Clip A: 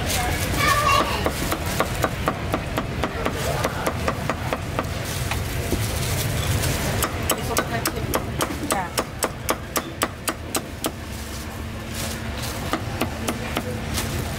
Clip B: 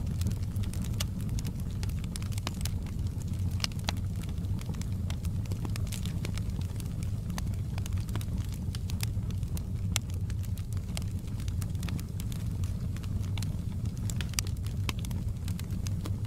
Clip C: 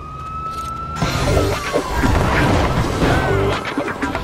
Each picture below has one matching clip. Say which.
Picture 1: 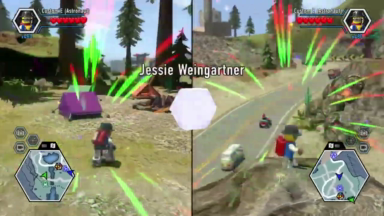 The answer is C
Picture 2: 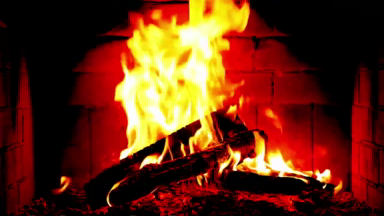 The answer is B